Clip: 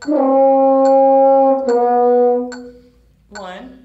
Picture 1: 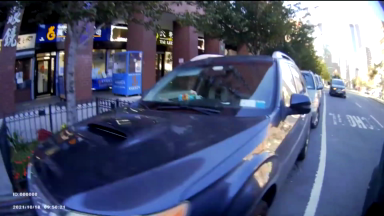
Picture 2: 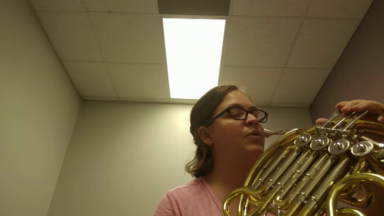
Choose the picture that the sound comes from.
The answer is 2